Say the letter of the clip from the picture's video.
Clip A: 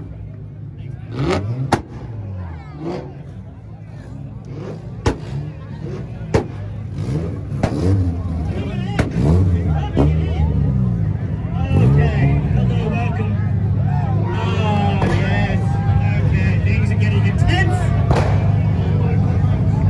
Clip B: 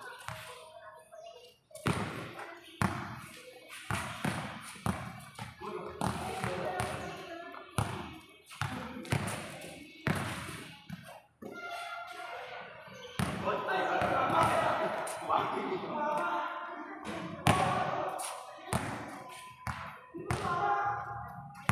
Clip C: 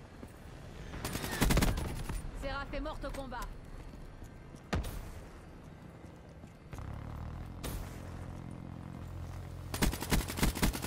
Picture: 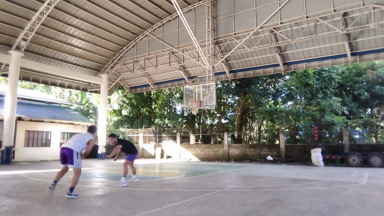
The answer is B